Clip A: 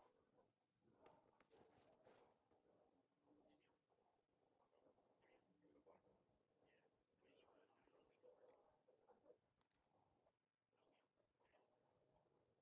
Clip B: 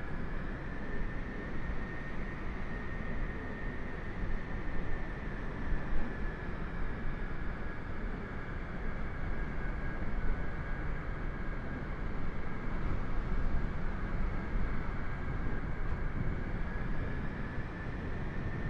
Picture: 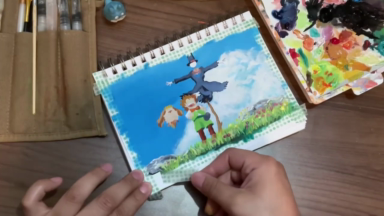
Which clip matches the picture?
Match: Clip A